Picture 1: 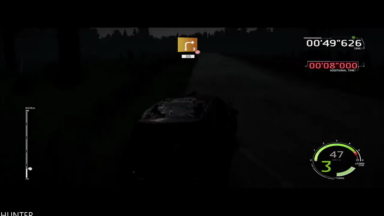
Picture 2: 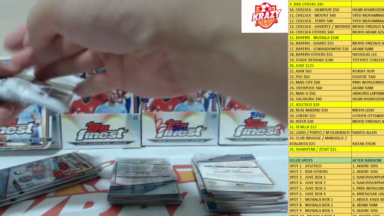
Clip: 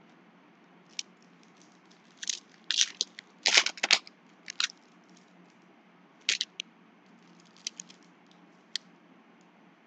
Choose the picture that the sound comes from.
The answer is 2